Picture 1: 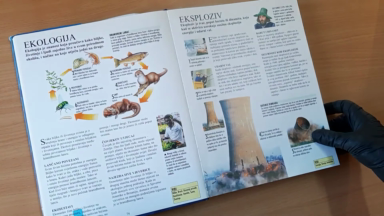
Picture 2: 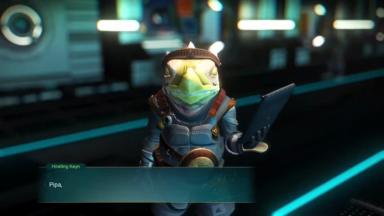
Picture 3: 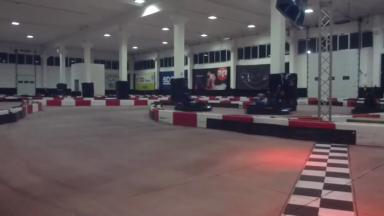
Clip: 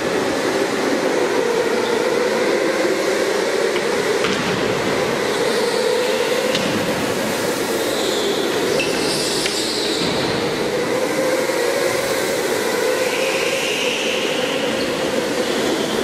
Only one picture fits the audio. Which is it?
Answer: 3